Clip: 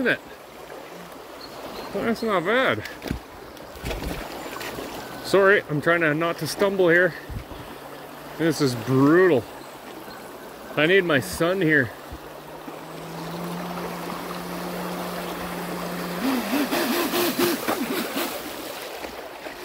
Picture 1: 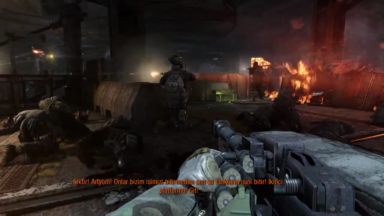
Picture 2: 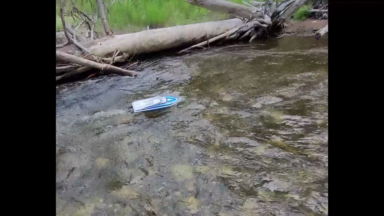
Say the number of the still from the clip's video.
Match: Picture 2